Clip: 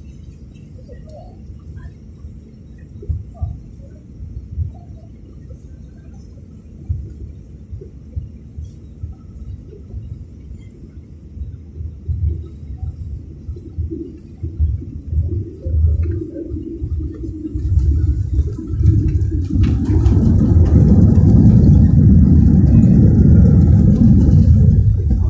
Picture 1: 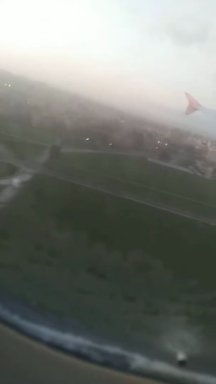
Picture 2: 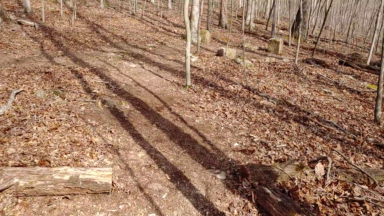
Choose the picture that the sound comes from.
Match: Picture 1